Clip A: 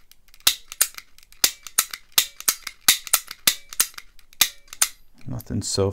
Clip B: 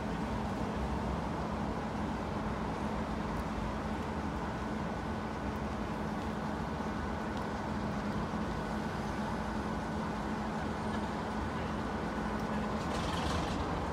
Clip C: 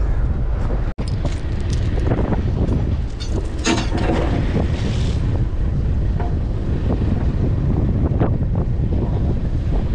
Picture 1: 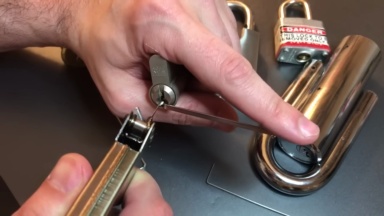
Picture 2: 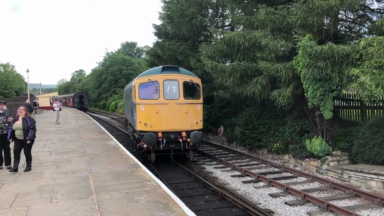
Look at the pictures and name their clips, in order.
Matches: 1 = A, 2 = B